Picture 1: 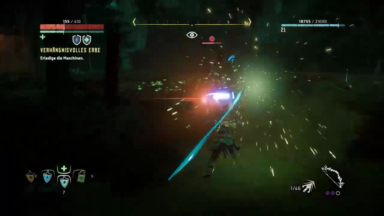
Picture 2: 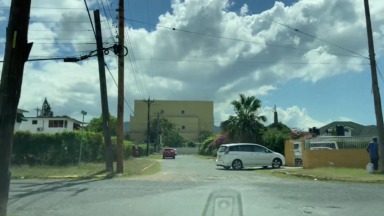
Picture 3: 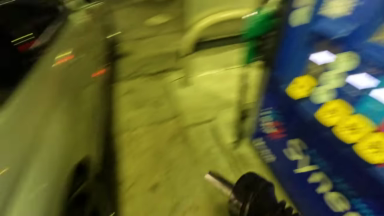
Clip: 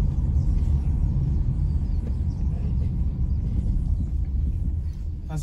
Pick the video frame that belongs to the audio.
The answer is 2